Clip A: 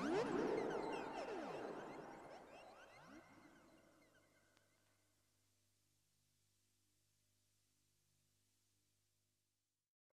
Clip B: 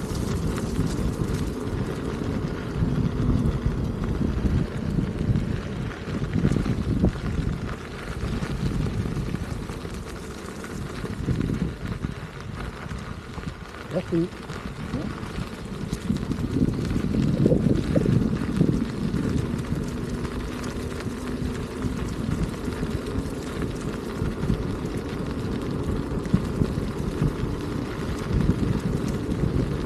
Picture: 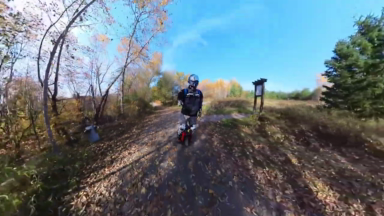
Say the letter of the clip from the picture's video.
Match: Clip B